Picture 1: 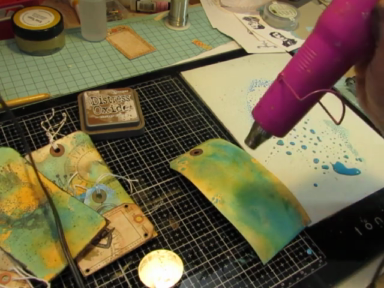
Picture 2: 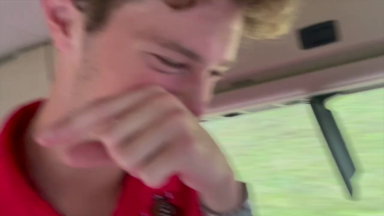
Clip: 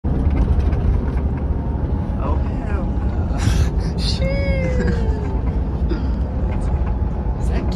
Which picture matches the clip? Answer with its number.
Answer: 2